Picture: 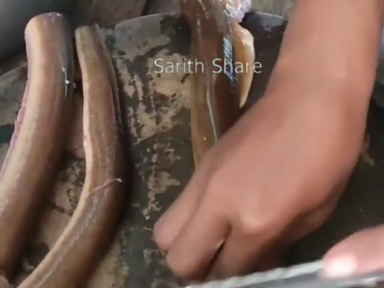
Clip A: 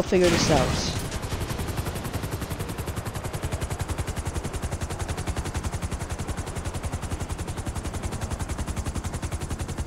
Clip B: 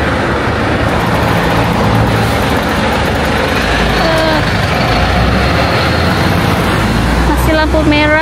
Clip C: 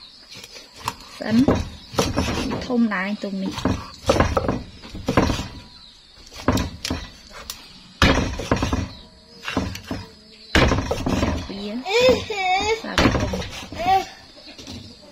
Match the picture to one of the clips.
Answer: C